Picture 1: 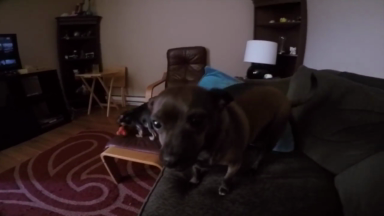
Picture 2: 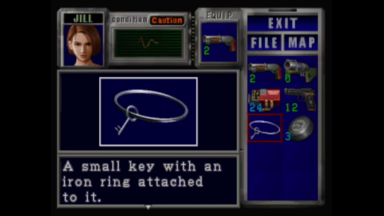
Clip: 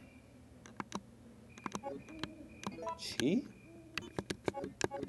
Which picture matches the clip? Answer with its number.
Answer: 2